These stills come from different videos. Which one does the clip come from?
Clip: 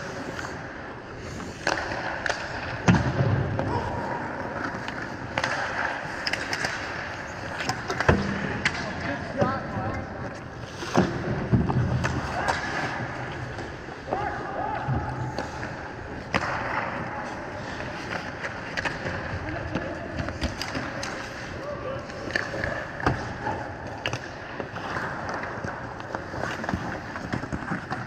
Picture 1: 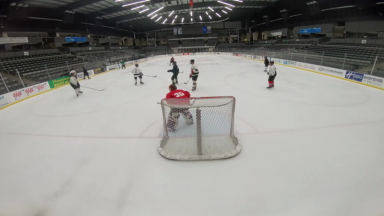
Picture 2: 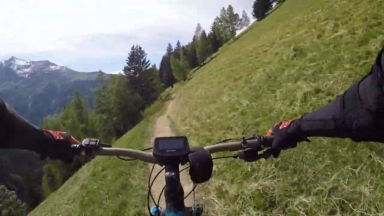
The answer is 1